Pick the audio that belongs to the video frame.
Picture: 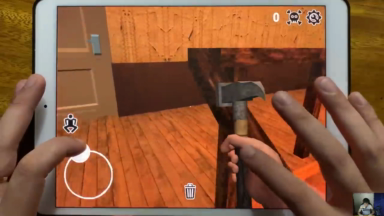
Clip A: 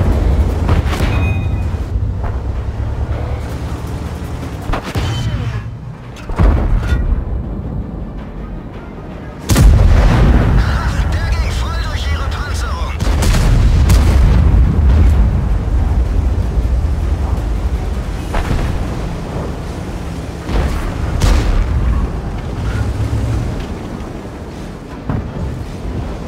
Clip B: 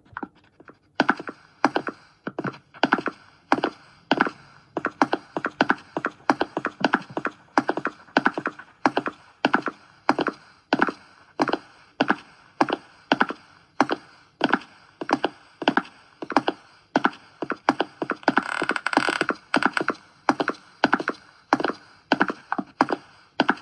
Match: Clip B